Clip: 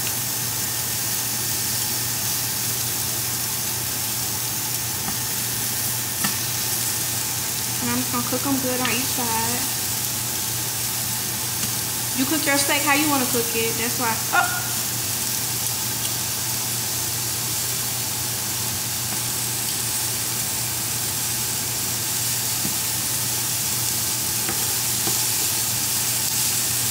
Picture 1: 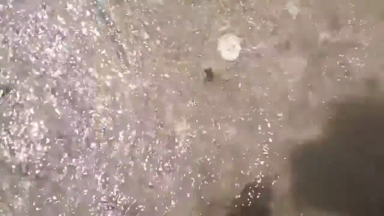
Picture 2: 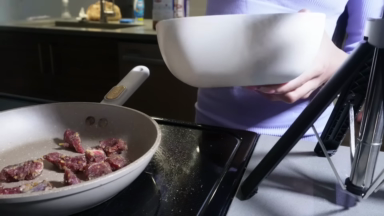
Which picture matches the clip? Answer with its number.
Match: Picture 2